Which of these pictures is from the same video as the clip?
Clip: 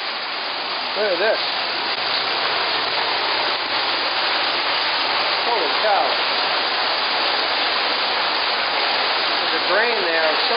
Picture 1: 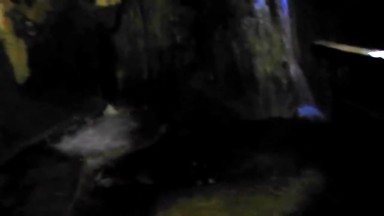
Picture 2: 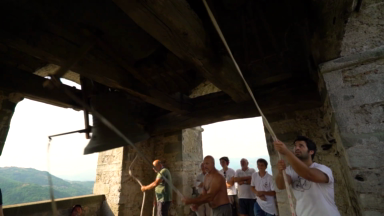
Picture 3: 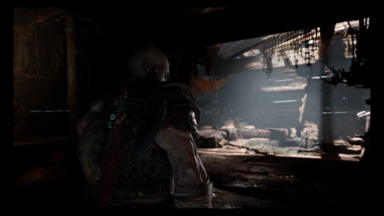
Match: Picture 1